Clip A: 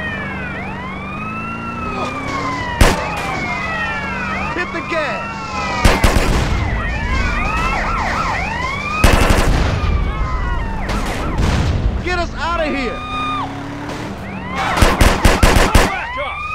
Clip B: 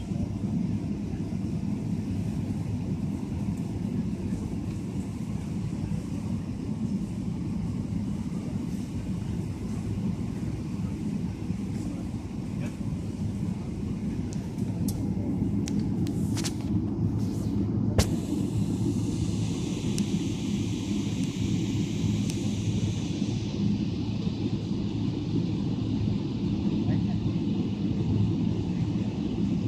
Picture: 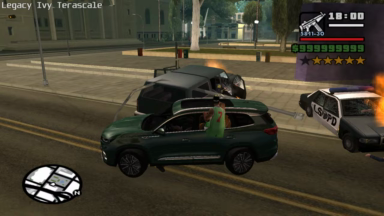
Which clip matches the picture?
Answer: A